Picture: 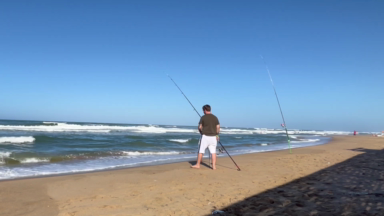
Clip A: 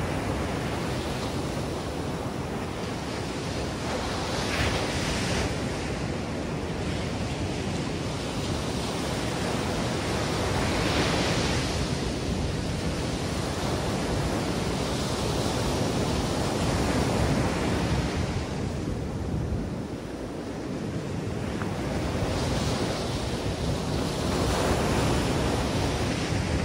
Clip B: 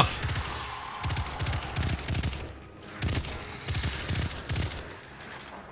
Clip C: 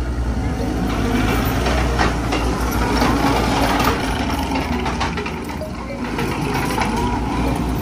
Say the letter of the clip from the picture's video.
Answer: A